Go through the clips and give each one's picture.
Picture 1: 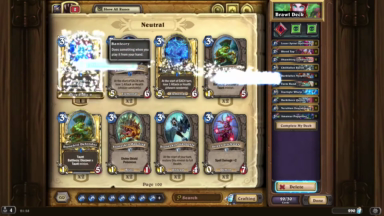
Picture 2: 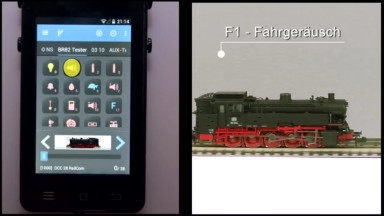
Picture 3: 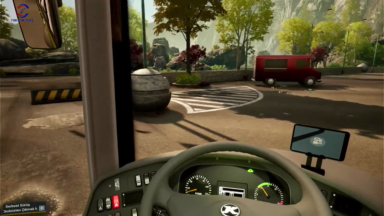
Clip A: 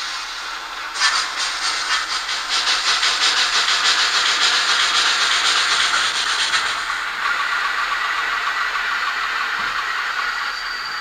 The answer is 2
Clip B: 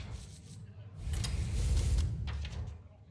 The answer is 1